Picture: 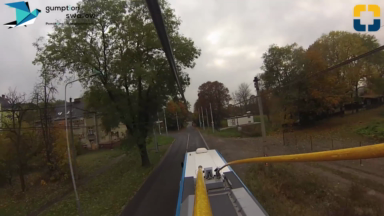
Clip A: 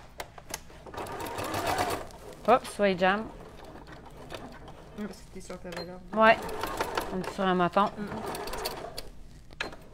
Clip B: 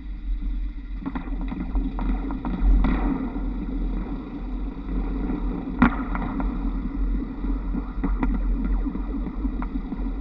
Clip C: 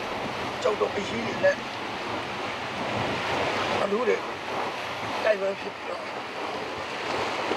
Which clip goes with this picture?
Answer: B